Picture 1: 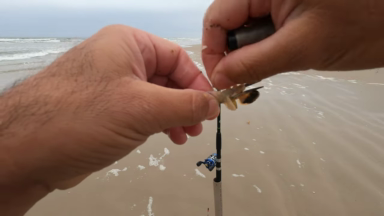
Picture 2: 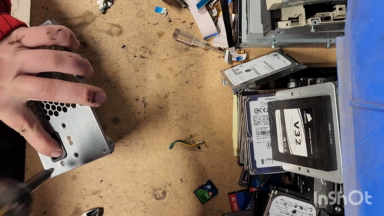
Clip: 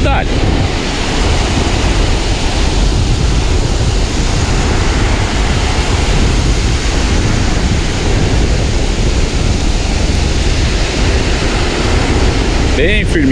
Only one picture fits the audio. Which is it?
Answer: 1